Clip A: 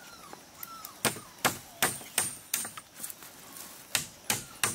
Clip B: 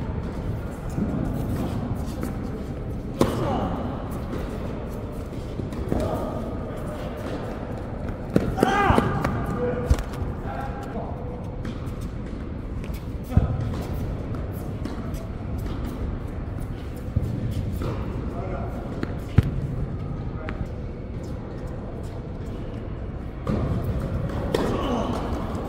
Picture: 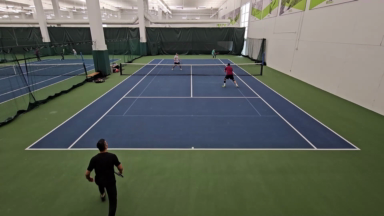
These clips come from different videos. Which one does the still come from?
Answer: B